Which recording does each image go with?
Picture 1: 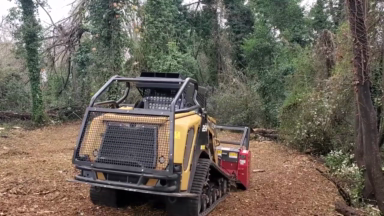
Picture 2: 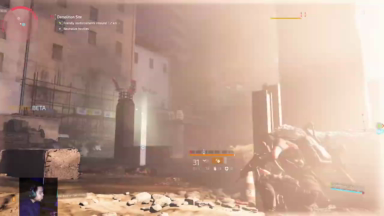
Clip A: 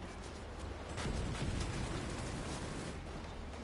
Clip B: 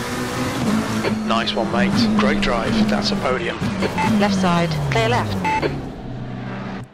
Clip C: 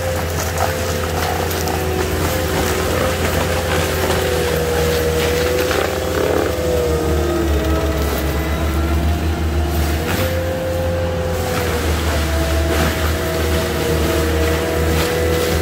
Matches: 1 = C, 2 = A